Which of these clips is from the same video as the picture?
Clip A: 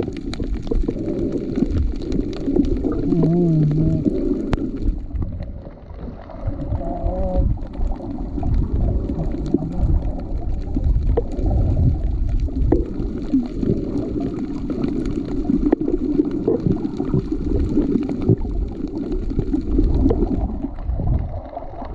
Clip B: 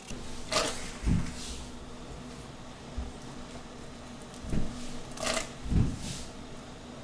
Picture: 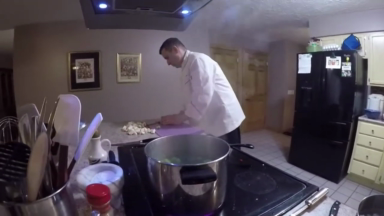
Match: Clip B